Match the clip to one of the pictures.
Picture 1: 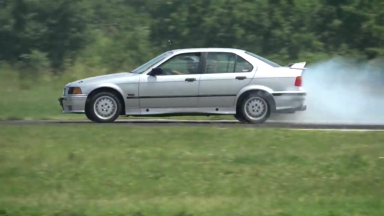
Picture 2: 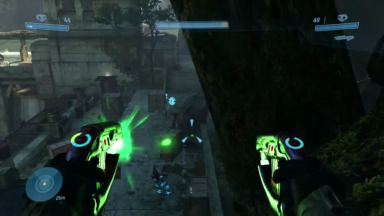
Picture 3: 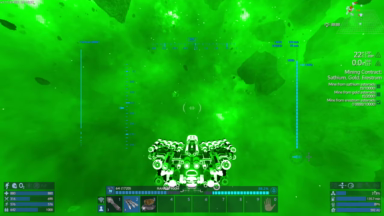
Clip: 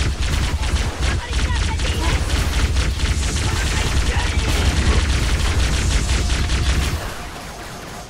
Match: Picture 2